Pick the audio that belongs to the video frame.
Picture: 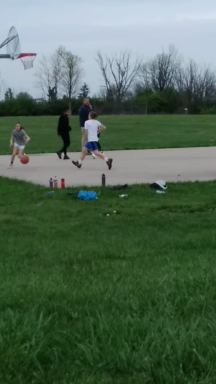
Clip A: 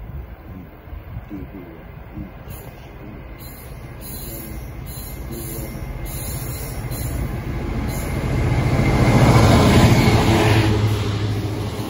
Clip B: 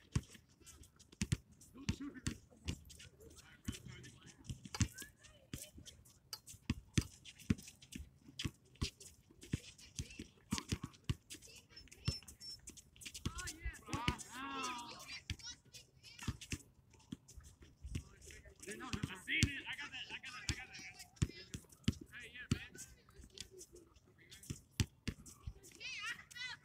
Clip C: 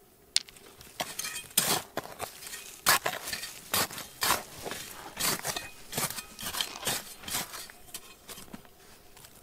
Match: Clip B